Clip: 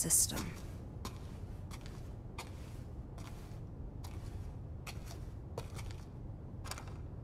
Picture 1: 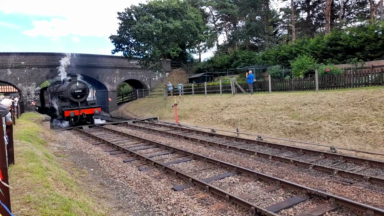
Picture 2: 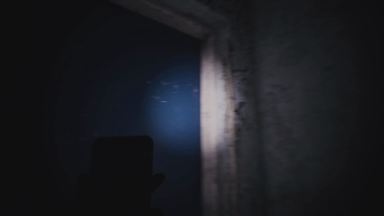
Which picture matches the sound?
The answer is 2